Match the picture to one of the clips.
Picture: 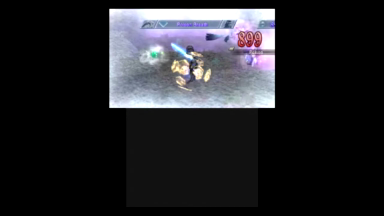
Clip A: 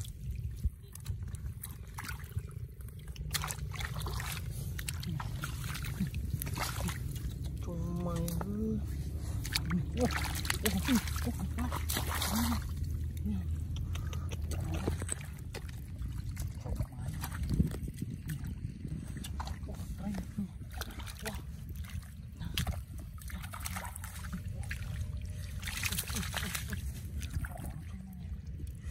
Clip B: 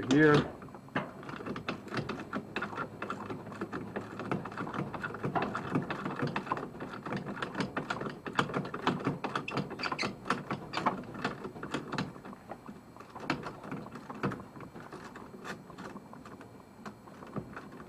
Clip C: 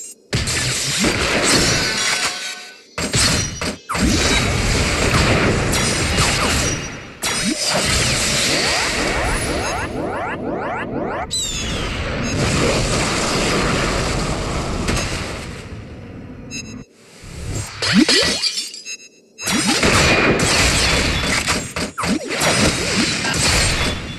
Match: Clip C